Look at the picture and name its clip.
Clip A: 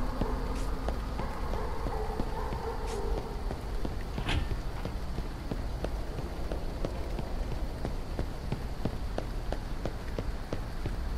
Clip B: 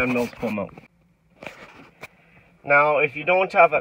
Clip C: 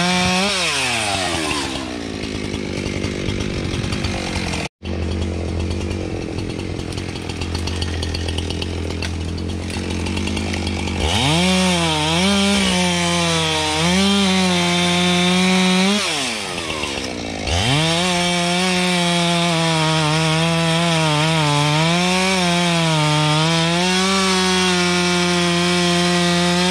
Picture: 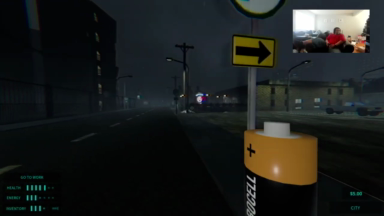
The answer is A